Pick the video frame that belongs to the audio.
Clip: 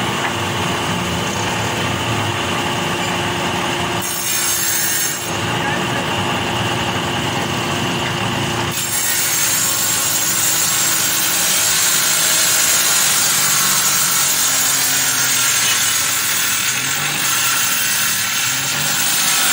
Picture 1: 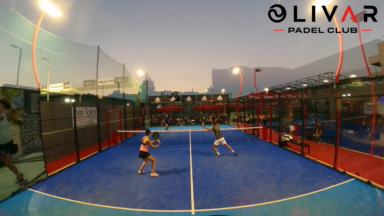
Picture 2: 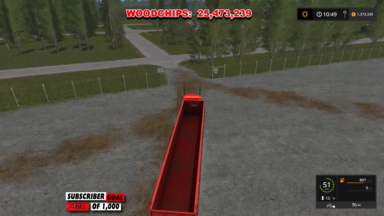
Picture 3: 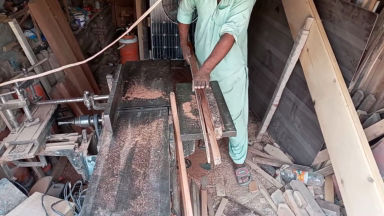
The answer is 3